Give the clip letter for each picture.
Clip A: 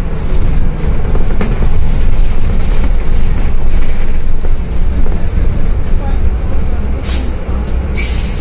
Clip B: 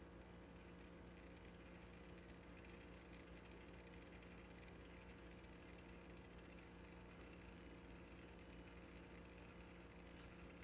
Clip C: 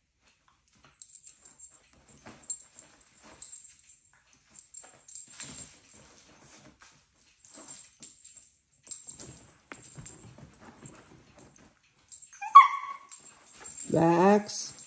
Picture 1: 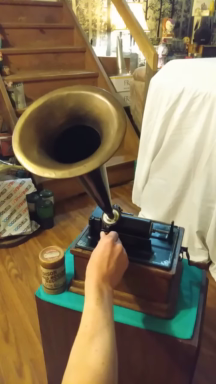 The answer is B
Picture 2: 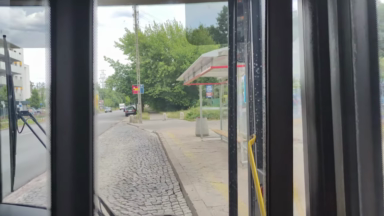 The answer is A